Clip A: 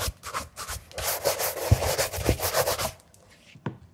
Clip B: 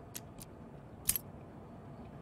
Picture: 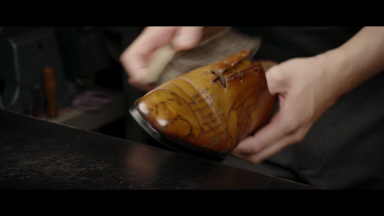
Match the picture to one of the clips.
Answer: A